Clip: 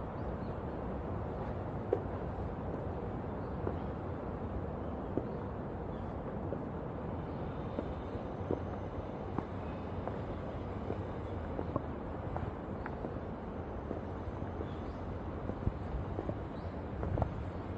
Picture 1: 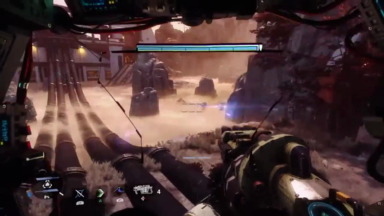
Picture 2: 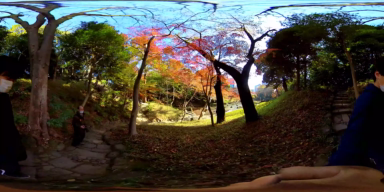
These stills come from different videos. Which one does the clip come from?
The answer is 2